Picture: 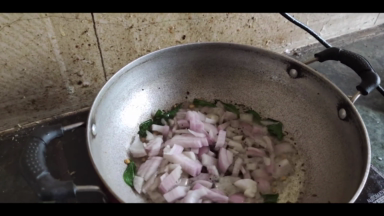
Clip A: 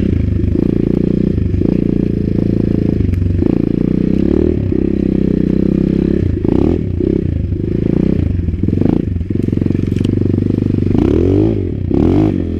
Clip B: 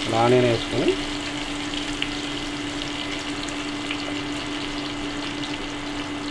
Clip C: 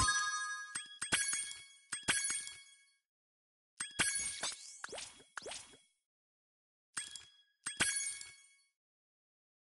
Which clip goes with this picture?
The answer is B